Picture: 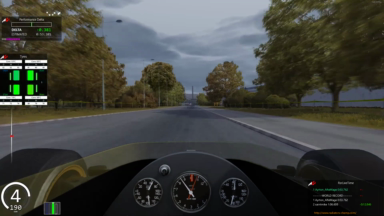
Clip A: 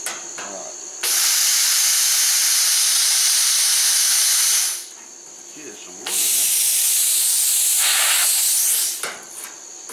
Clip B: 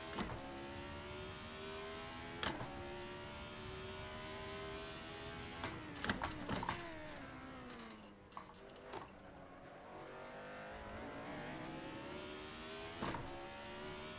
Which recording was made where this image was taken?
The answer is B